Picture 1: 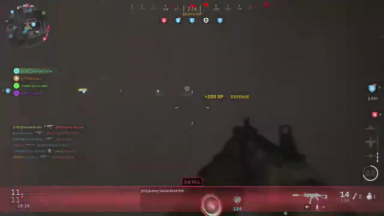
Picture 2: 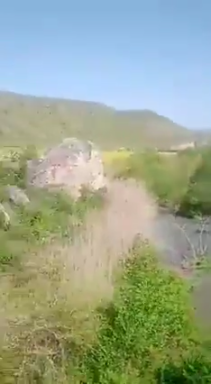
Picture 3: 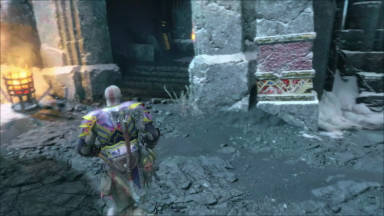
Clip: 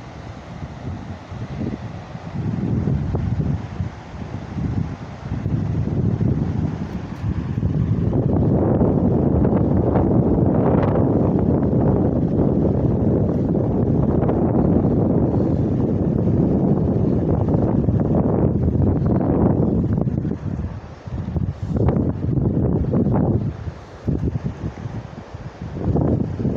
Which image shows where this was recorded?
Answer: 2